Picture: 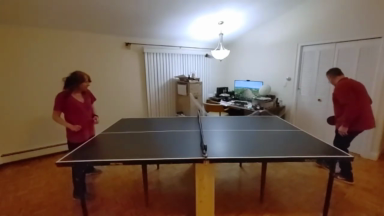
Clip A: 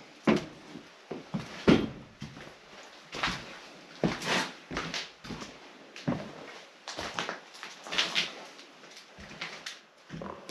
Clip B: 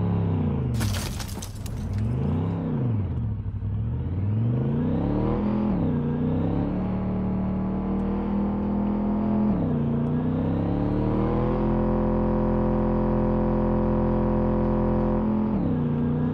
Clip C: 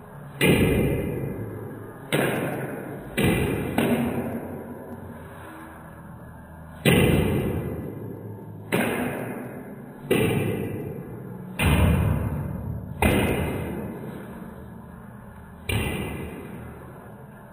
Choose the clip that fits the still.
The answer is C